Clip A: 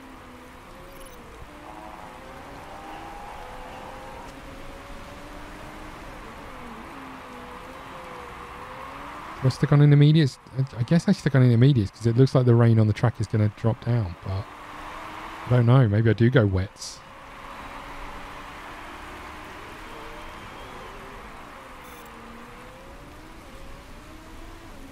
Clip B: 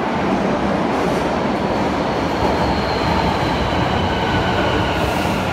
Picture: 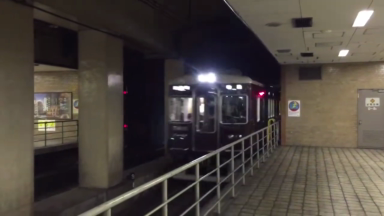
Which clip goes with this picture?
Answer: B